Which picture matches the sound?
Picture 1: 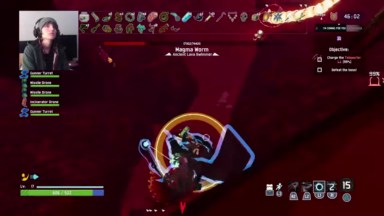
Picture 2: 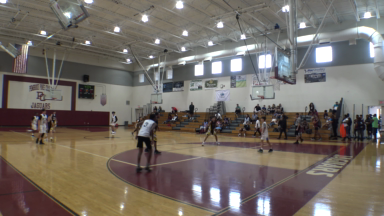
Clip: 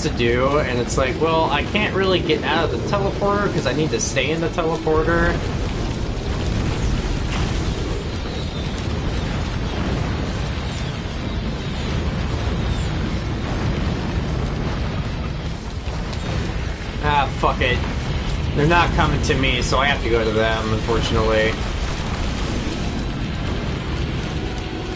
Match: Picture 1